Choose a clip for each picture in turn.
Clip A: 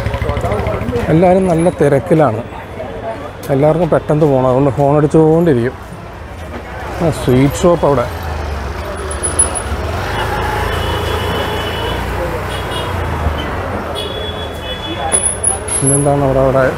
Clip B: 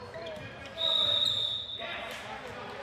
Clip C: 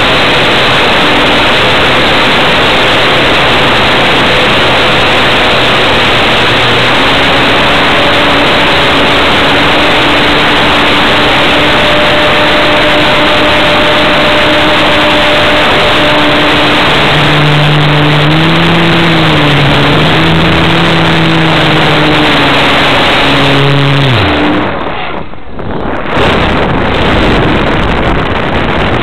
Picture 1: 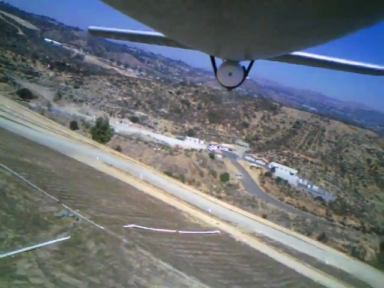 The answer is C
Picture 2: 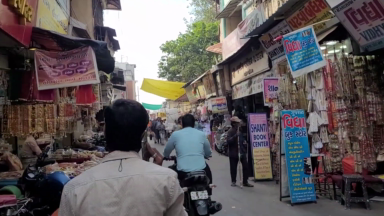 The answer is A